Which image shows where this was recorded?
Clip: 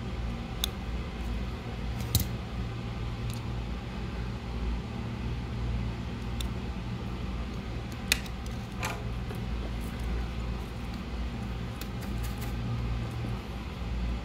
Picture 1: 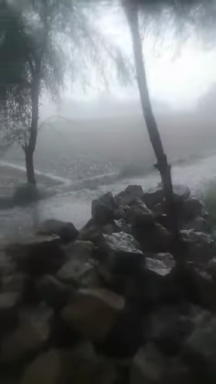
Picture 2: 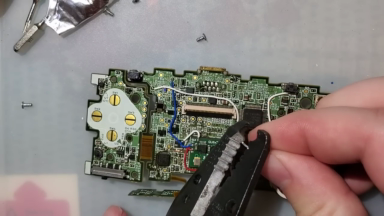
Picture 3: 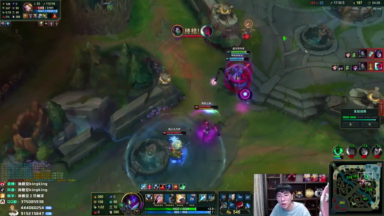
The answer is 2